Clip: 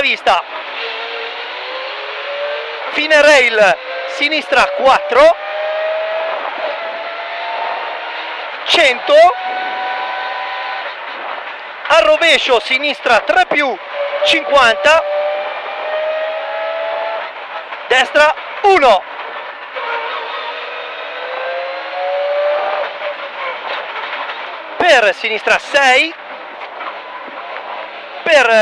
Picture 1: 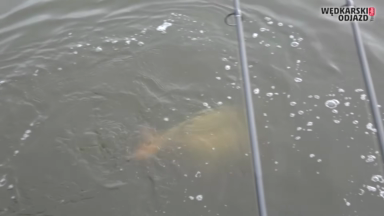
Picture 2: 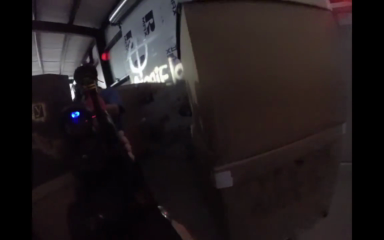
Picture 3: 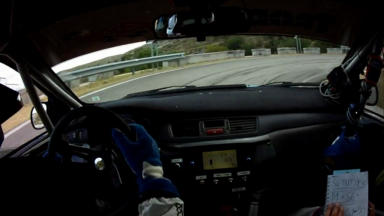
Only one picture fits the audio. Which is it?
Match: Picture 3